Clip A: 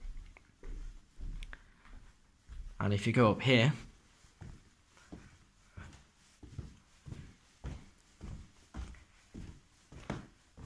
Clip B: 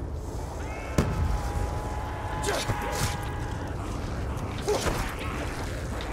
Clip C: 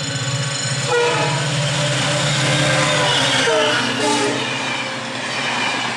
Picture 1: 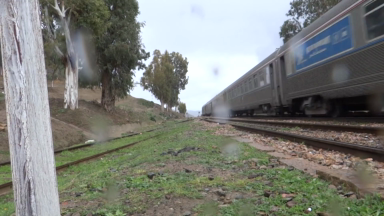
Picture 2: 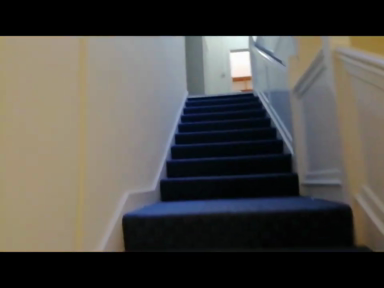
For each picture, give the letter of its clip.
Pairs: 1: C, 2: A